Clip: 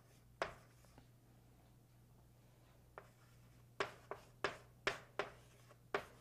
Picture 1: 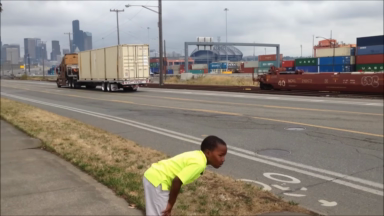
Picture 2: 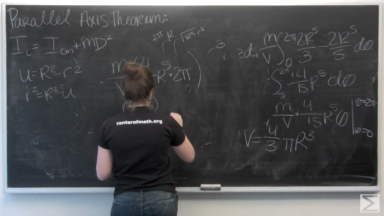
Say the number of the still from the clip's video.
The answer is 2